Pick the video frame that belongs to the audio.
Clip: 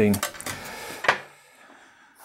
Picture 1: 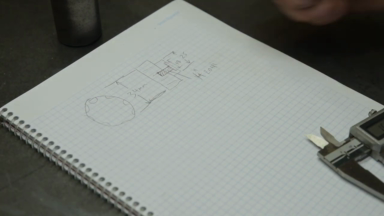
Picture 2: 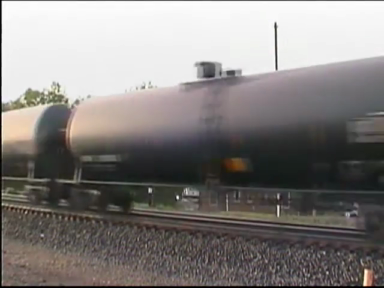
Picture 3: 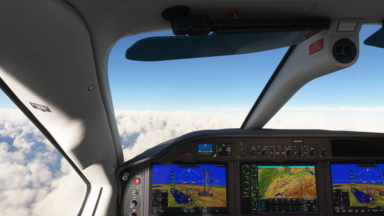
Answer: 1